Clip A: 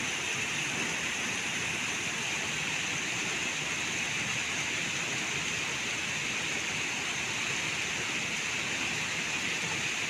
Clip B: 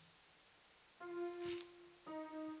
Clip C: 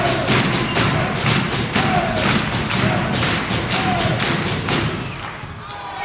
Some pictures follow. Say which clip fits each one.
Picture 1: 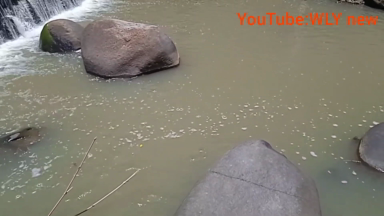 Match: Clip A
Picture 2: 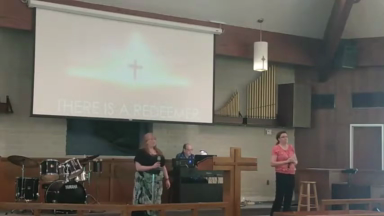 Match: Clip B